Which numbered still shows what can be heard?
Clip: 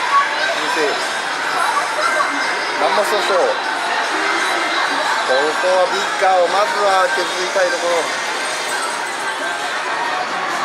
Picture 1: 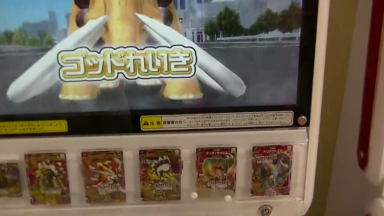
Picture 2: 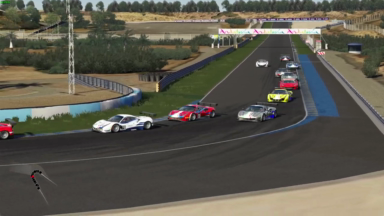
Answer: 1